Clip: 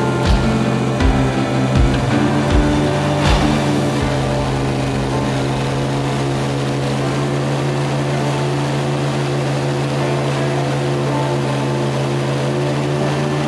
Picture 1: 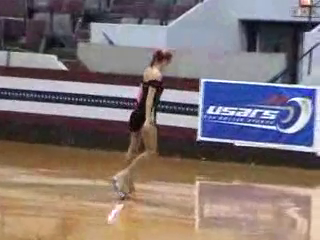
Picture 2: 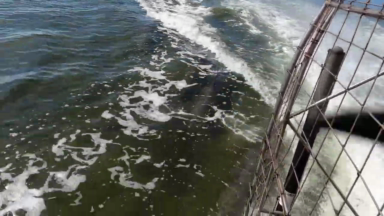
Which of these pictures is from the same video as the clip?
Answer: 2